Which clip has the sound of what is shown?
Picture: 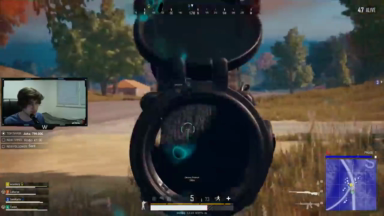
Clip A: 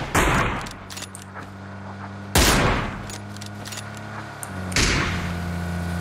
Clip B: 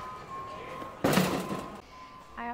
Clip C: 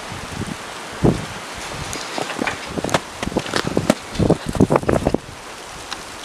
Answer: A